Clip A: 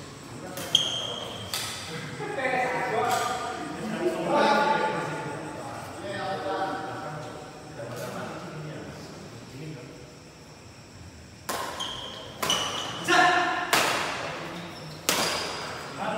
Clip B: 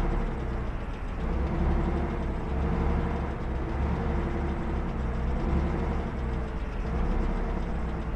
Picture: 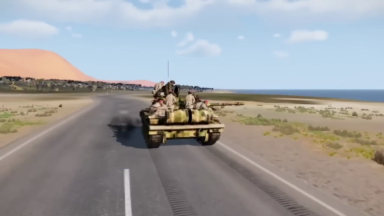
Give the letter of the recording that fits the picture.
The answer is B